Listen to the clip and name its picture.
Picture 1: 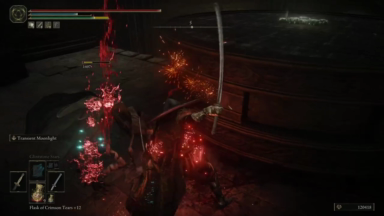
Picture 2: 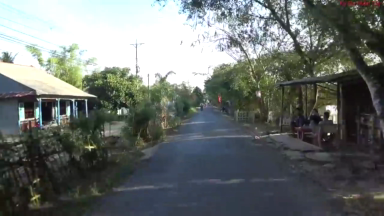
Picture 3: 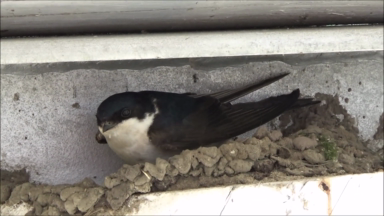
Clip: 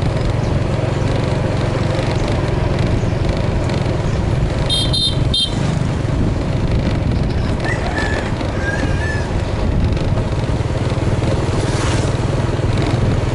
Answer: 2